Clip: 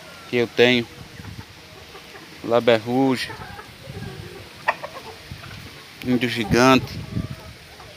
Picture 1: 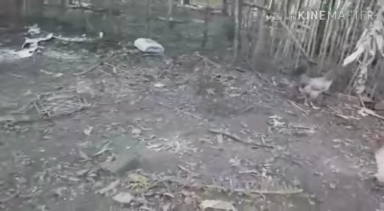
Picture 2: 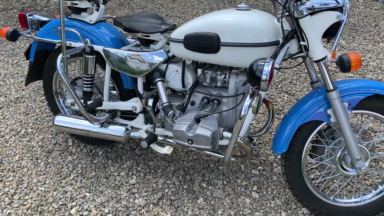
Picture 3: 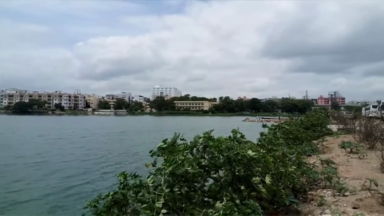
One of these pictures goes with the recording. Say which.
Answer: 1